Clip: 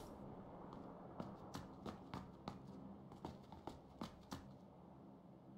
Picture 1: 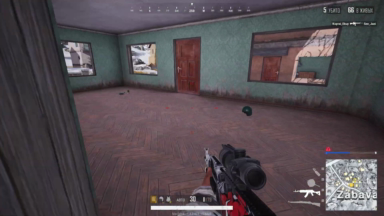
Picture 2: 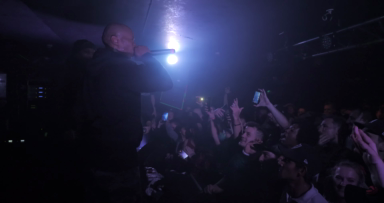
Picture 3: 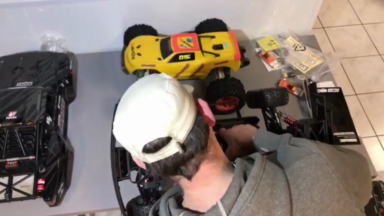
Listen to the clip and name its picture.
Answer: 1